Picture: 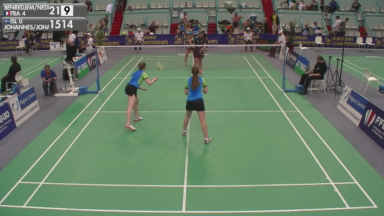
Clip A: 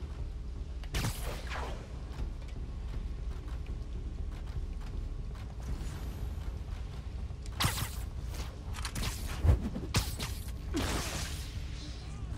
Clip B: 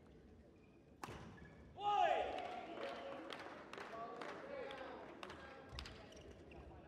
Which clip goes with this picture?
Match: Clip B